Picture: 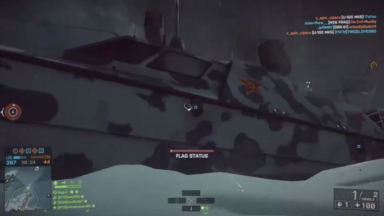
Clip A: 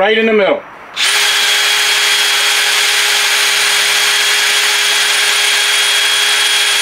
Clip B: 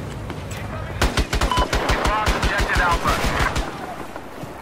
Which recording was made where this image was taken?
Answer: B